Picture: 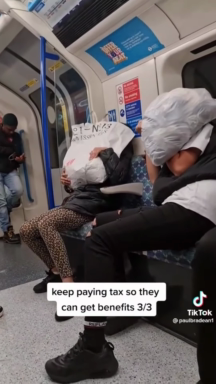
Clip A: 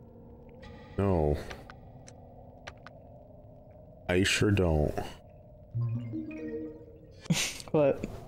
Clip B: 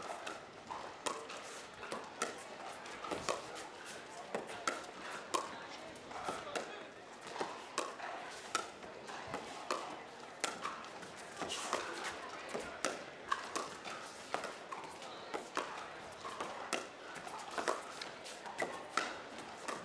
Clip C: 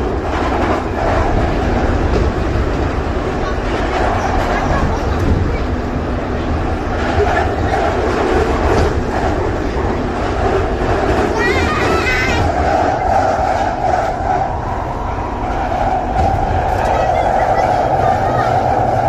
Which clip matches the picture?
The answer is C